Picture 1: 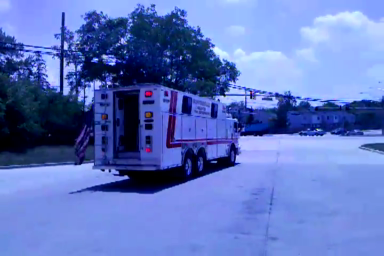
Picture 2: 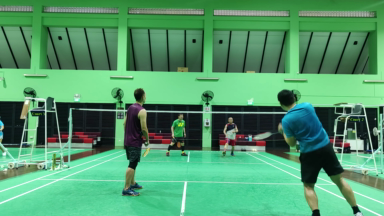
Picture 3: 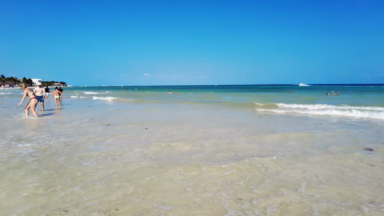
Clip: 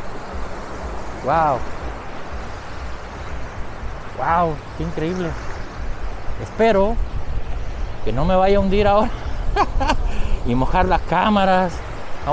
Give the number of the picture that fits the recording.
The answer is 3